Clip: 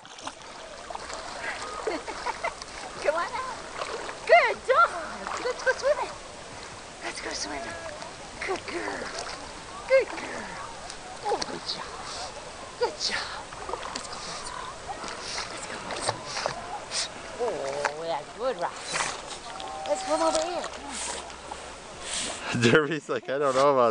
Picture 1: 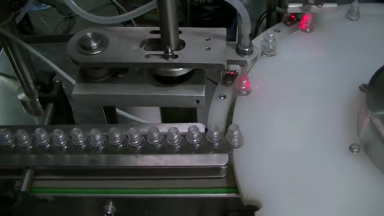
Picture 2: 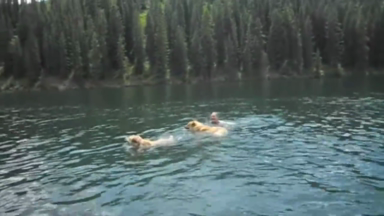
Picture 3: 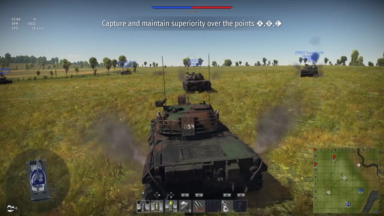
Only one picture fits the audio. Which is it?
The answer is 2